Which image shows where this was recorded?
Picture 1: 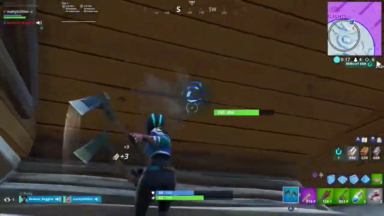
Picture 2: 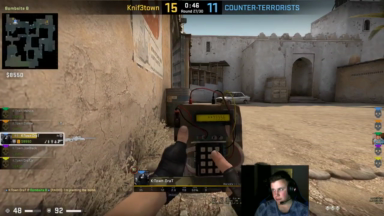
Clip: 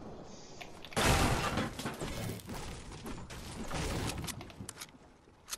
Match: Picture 1